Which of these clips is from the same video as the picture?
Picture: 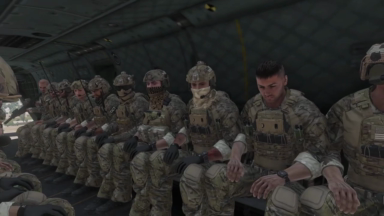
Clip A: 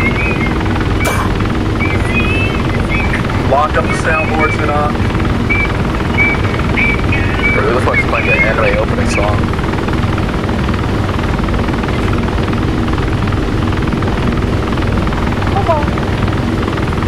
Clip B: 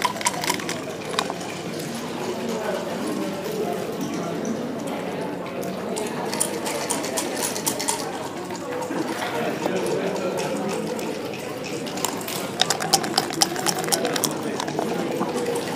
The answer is A